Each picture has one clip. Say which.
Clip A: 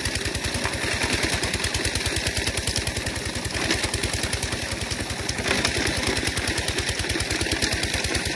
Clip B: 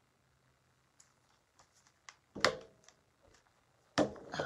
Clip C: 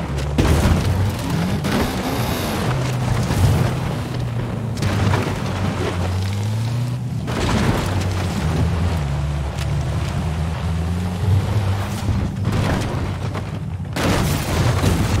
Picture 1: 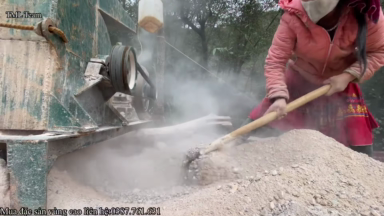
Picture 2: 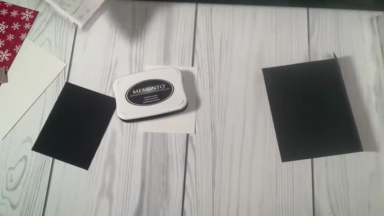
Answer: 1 A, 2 B